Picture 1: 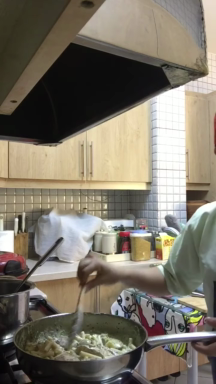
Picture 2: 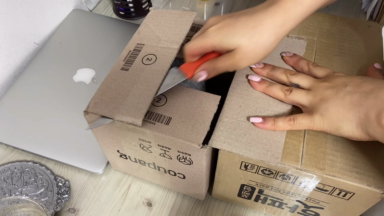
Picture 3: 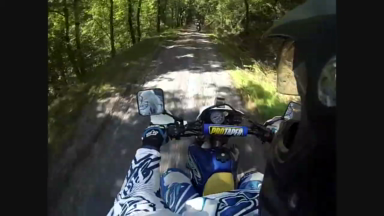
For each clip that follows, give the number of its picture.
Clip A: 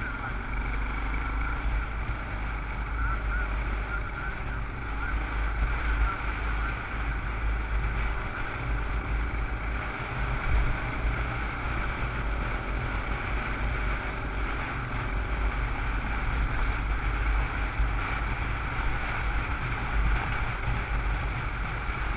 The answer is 3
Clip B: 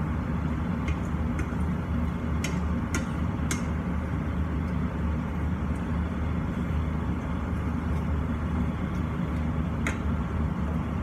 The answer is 1